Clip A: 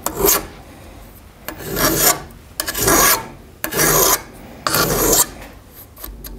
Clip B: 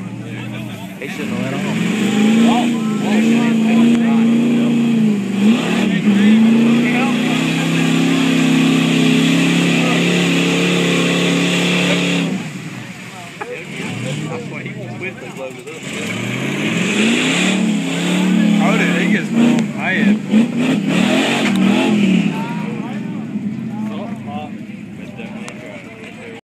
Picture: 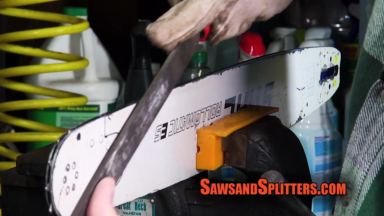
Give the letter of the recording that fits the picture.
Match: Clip A